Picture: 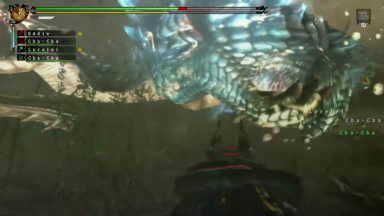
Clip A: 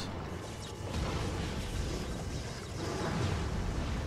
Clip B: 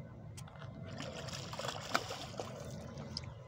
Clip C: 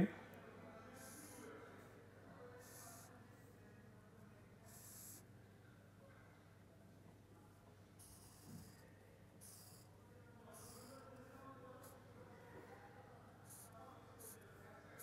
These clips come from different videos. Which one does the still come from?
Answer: A